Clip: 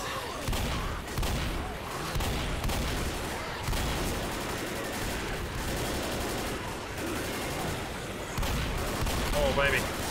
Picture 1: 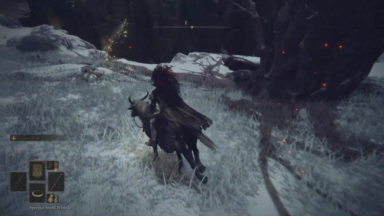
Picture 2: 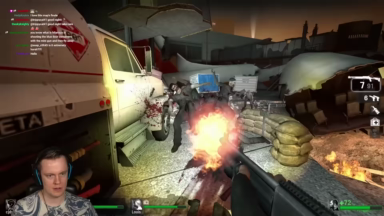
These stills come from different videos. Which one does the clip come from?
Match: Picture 2